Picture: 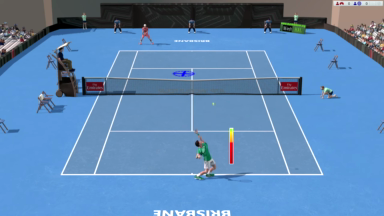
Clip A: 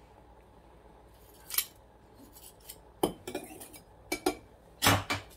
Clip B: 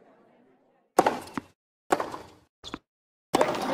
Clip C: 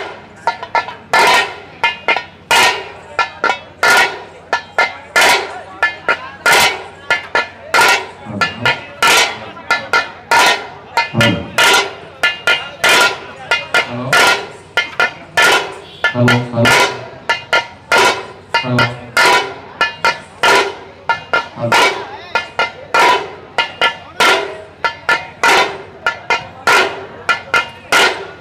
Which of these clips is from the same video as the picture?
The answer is B